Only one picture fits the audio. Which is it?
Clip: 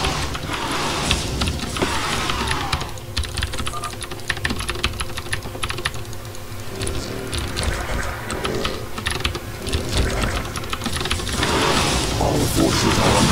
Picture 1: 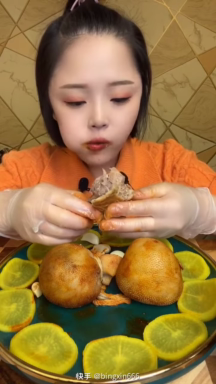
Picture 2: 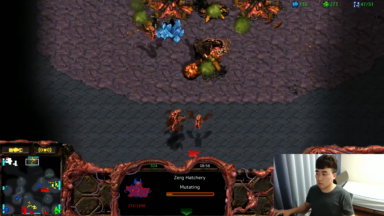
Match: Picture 2